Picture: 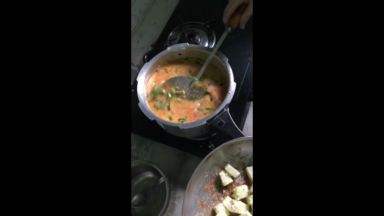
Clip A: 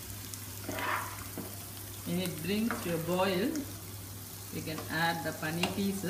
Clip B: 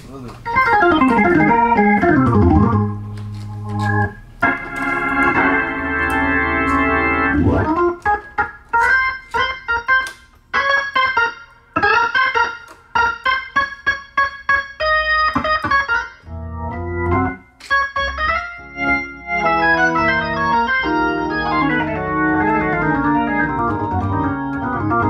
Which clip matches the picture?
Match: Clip A